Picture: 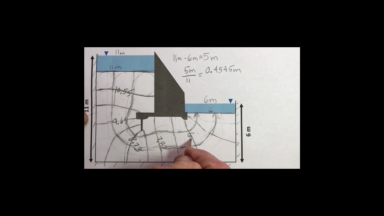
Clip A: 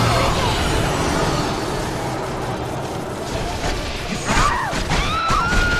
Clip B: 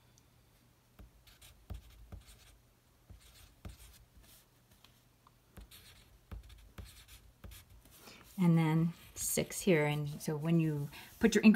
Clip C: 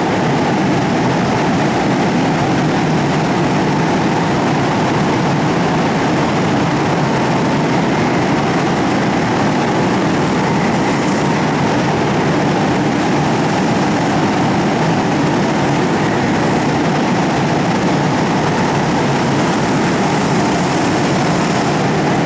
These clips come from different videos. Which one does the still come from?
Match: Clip B